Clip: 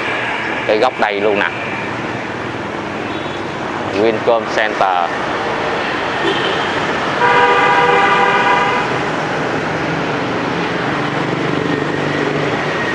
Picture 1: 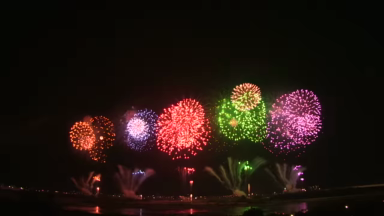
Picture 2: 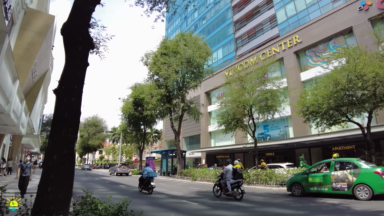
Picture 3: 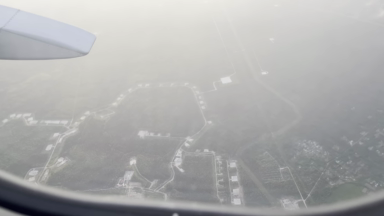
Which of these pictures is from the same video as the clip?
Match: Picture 2